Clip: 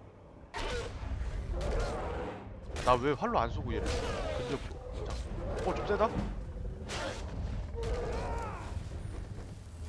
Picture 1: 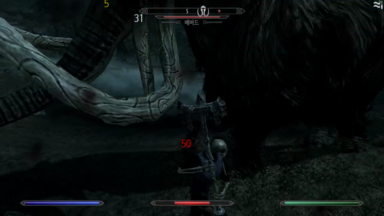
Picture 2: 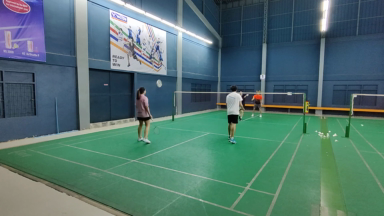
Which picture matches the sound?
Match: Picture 1